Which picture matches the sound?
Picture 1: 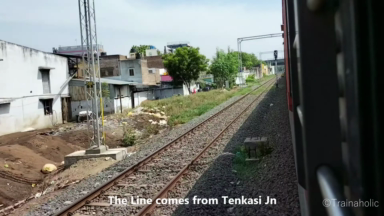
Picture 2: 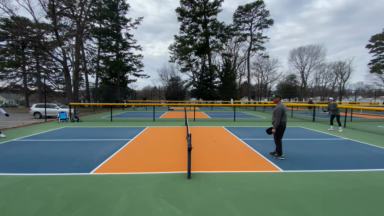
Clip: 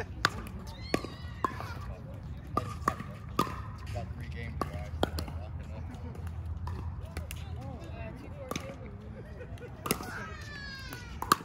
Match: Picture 2